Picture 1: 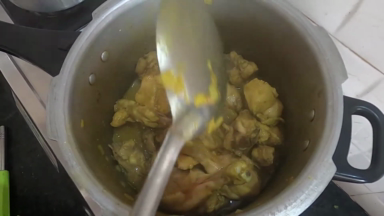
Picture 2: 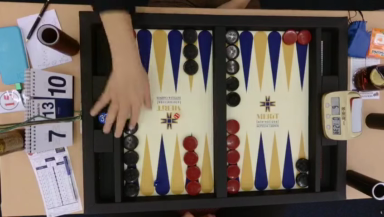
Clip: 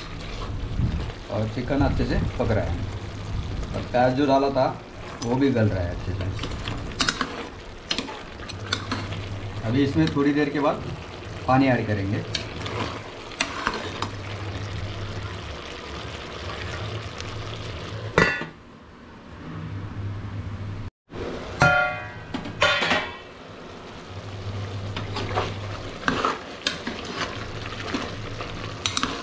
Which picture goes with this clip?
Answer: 1